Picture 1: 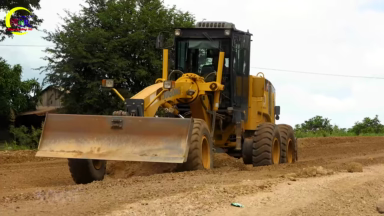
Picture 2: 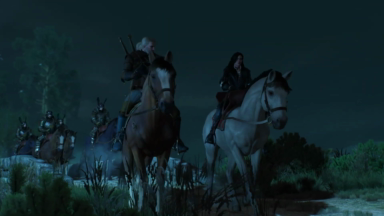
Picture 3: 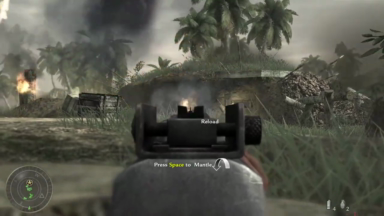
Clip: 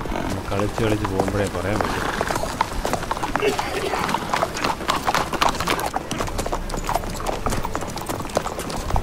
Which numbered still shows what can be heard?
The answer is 2